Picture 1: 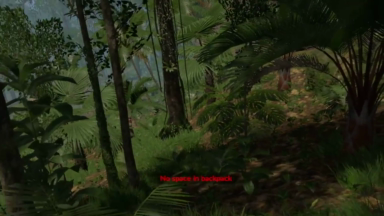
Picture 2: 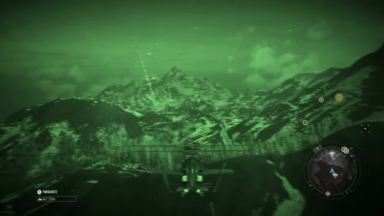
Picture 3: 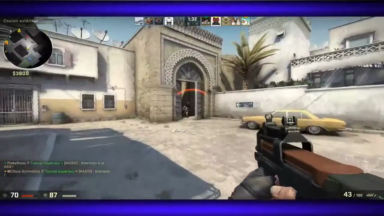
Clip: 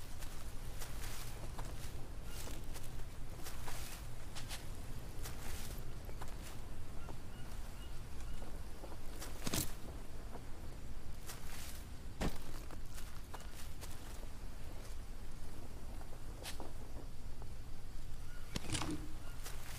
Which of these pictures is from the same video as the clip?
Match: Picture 1